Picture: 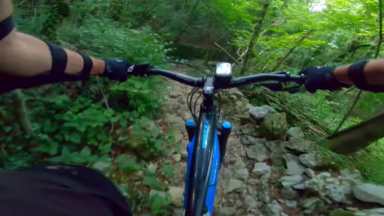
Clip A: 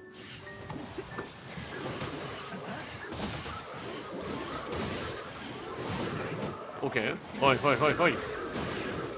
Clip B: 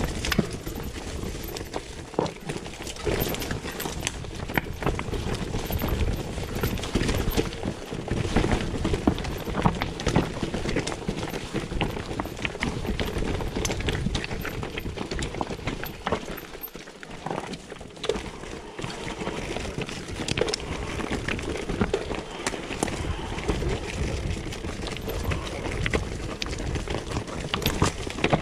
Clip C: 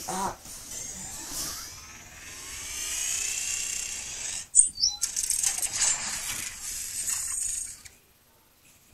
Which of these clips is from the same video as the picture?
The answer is B